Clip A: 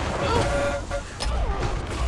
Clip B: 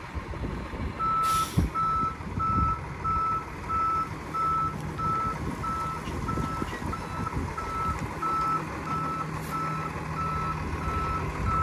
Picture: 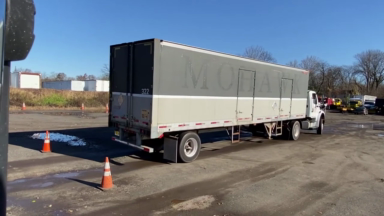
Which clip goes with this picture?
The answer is B